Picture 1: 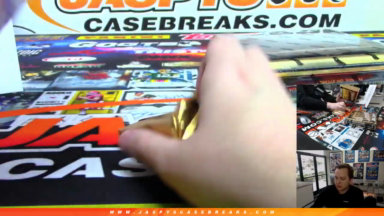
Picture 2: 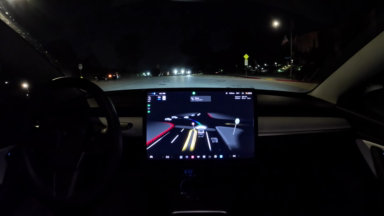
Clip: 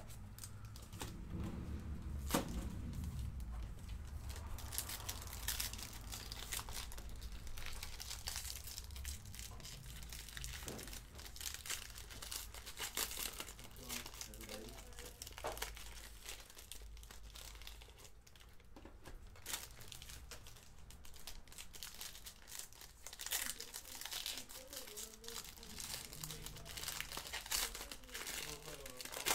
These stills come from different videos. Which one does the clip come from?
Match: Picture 1